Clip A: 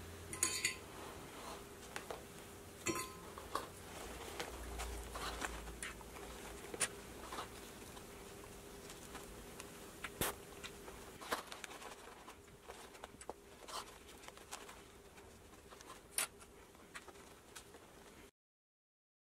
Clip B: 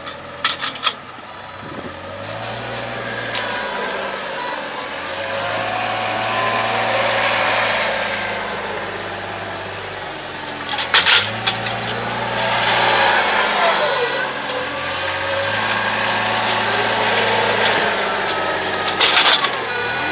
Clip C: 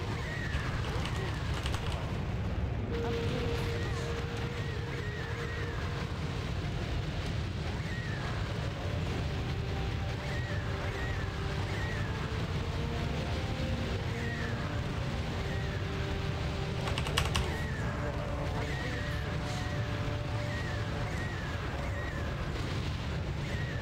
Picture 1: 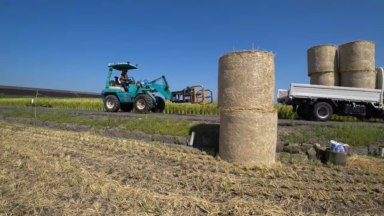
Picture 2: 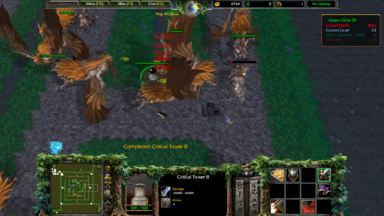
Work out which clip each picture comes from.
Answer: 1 B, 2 C